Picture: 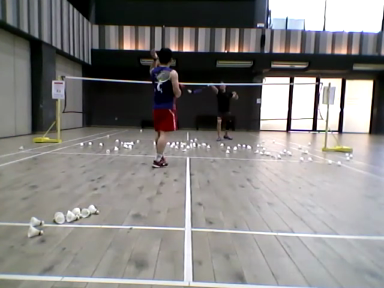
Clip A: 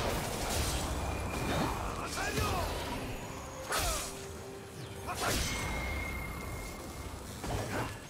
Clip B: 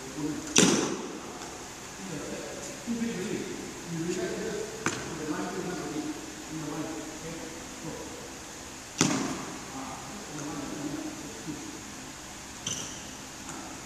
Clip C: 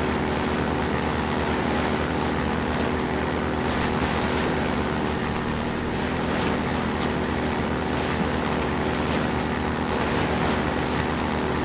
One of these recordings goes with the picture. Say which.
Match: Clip B